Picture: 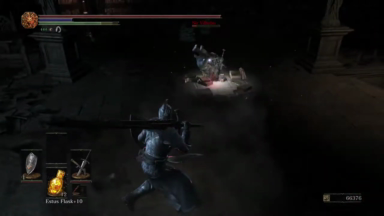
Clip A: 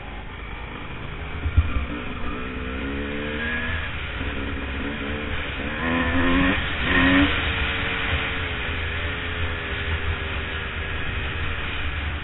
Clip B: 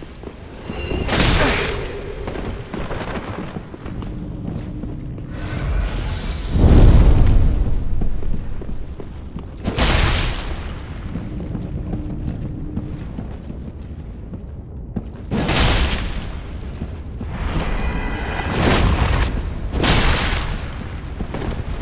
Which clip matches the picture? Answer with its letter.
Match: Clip B